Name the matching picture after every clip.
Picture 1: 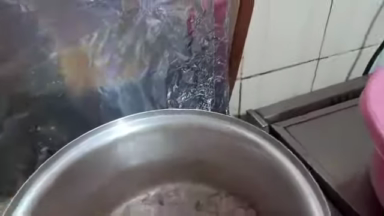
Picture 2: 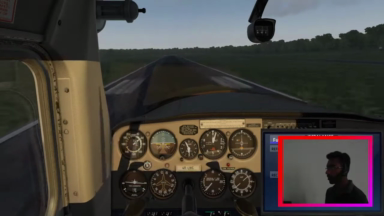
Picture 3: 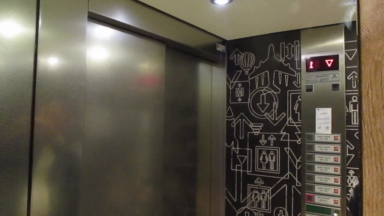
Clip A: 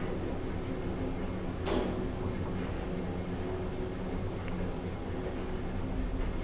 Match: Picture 3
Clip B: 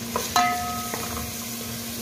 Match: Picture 1